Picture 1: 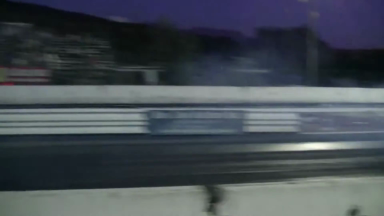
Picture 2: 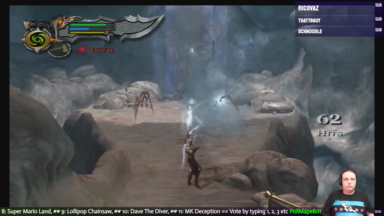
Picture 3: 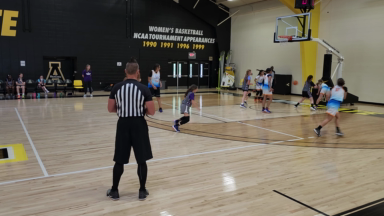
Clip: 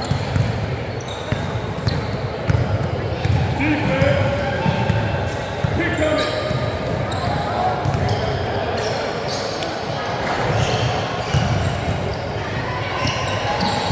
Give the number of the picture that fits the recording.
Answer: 3